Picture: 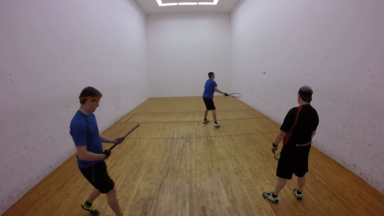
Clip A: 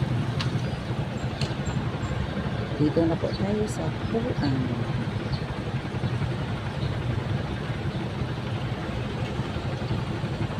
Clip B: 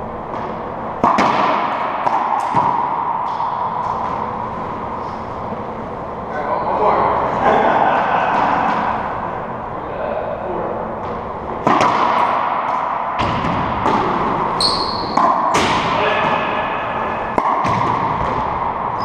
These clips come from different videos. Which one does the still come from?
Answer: B